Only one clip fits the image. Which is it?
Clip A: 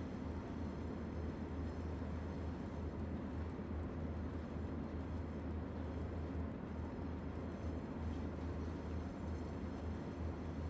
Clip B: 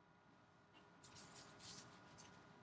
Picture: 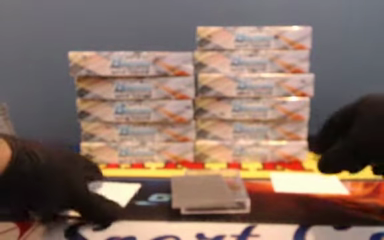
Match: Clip B